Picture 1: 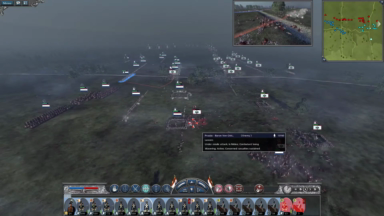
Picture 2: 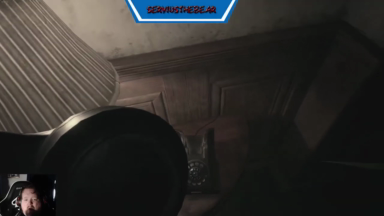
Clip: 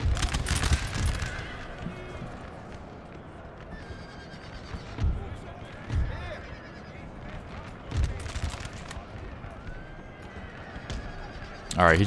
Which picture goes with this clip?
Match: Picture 1